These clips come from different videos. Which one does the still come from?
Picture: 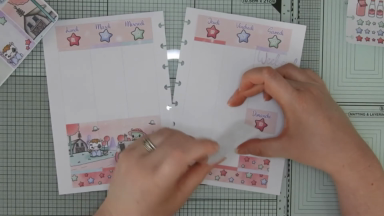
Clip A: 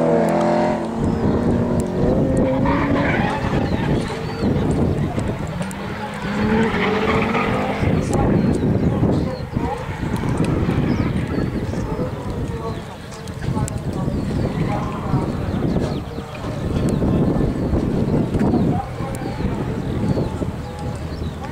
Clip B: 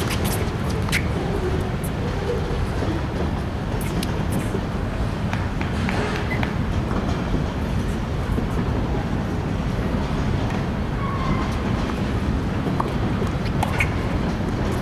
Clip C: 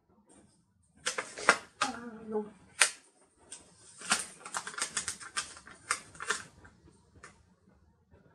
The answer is C